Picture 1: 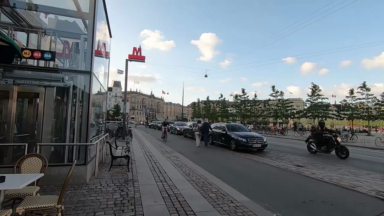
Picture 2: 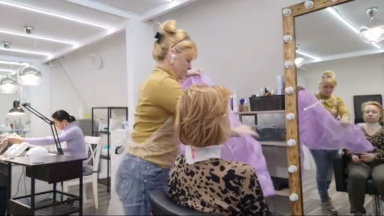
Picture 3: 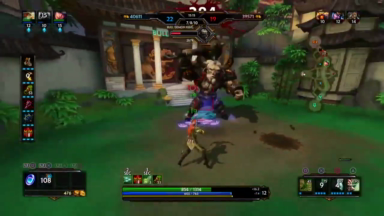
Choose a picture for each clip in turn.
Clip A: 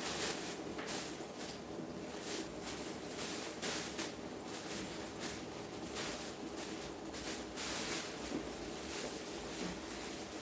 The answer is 2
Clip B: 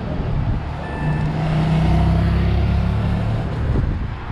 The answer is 1